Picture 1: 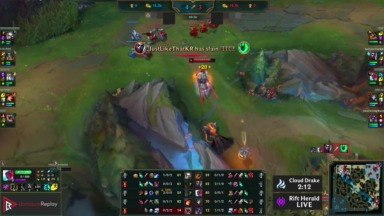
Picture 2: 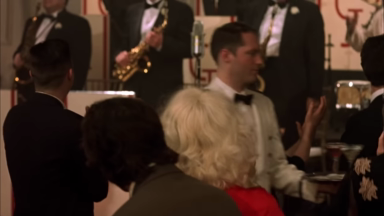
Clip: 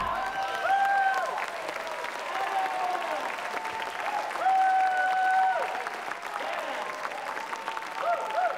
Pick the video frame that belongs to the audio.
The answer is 2